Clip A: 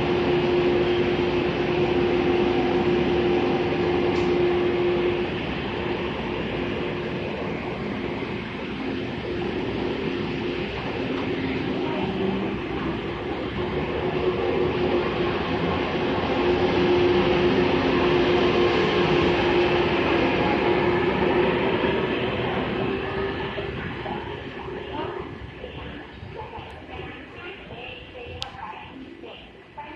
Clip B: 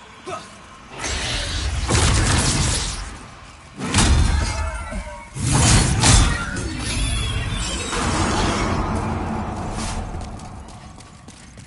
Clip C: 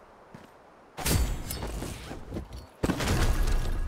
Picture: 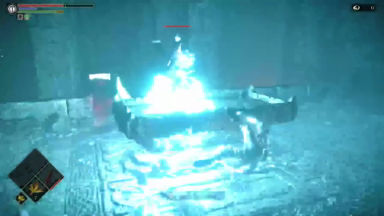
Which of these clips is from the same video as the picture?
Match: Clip B